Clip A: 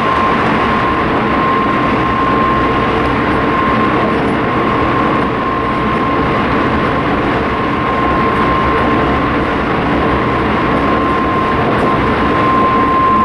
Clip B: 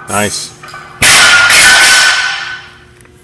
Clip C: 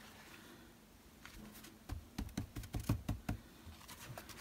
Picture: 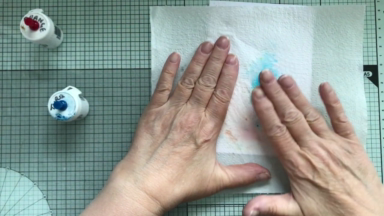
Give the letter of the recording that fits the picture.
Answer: C